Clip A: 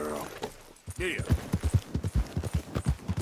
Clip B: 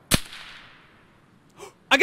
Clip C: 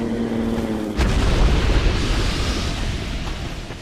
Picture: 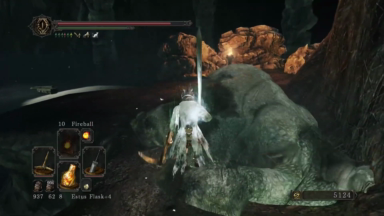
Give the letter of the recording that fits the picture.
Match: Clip C